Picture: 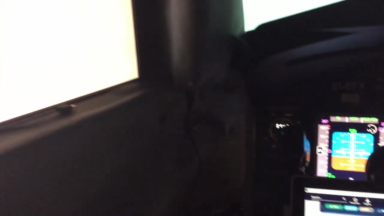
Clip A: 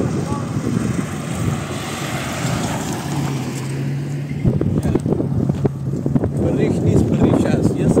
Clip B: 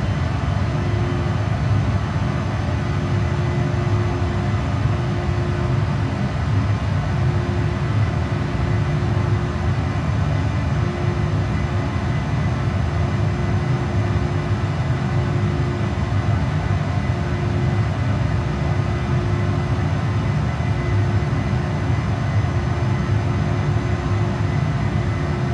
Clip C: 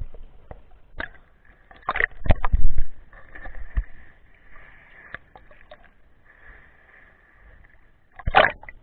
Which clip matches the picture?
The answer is B